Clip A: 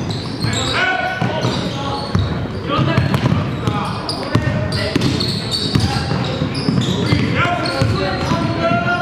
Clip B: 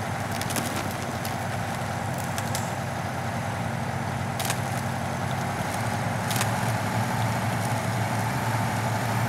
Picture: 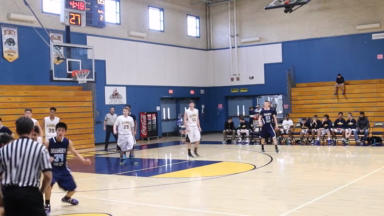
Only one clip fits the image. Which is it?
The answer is A